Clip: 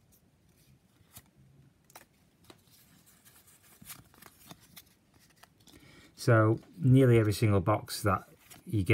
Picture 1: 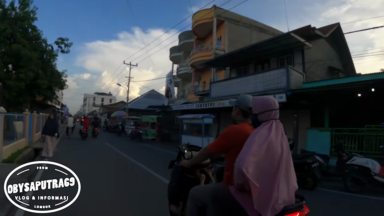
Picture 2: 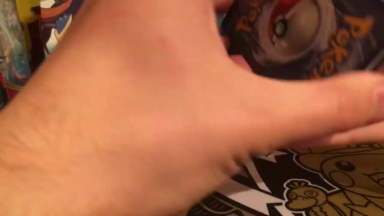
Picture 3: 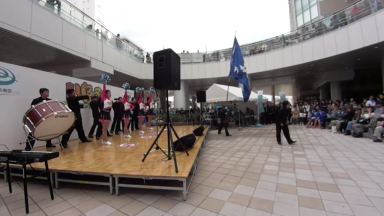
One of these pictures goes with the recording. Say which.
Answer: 2